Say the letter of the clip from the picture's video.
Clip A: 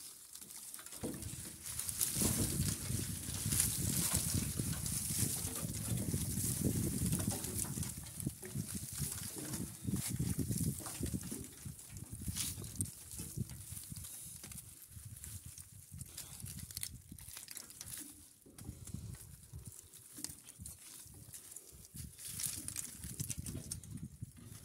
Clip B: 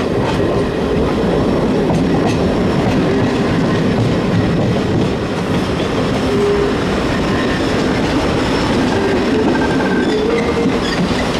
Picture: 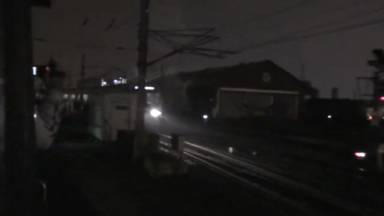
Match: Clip B